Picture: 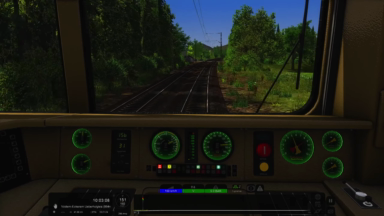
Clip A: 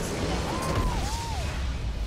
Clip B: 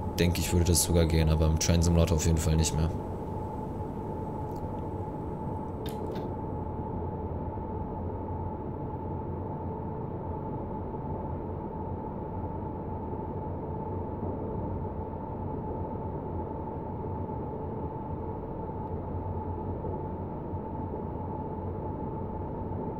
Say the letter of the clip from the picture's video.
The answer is B